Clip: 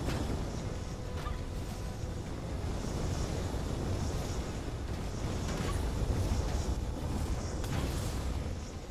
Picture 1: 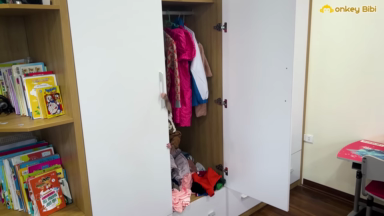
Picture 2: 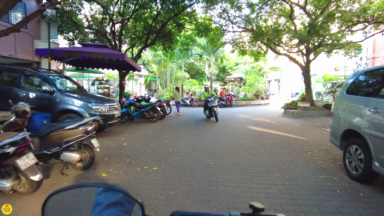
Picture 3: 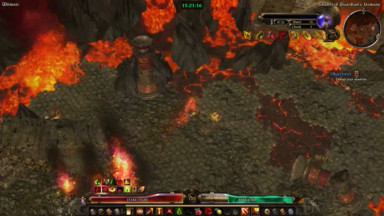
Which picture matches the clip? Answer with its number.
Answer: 3